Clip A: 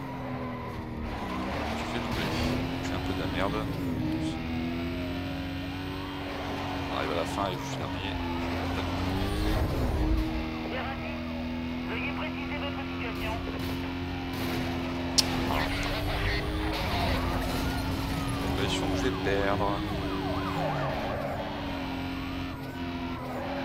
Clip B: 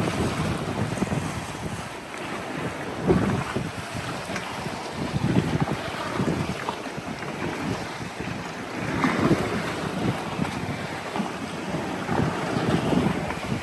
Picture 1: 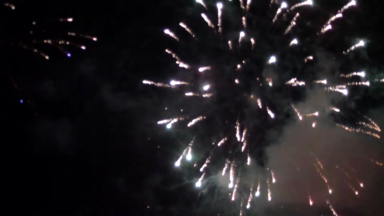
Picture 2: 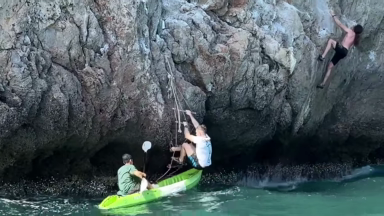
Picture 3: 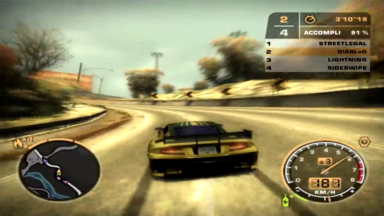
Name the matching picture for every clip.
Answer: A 3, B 2